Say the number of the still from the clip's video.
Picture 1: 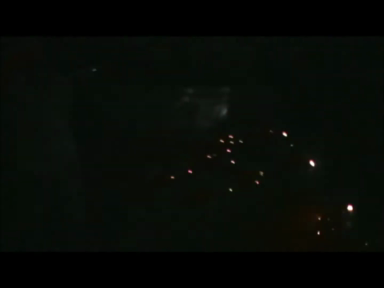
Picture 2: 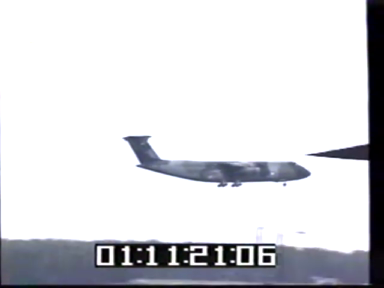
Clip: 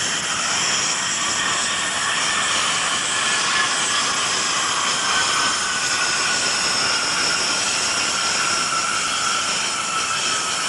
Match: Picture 2